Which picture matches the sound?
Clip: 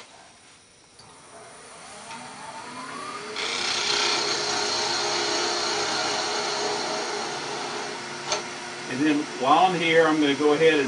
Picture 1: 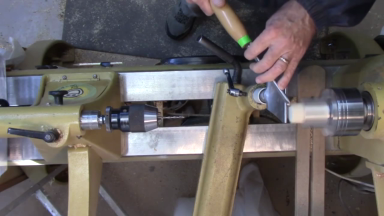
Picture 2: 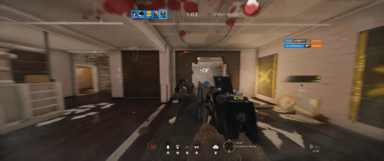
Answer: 1